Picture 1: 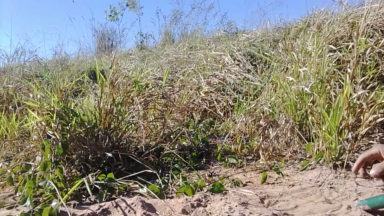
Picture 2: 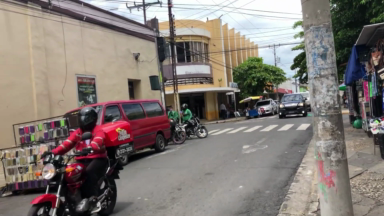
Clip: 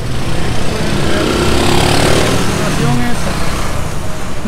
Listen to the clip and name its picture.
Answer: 2